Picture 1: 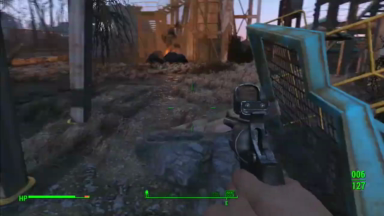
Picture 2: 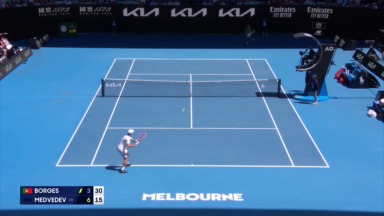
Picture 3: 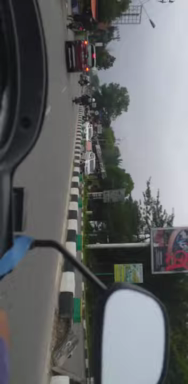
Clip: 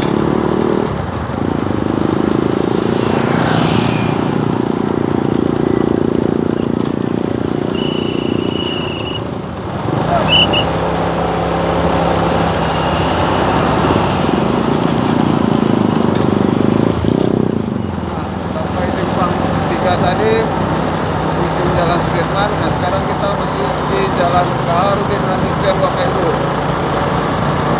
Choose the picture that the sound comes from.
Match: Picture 3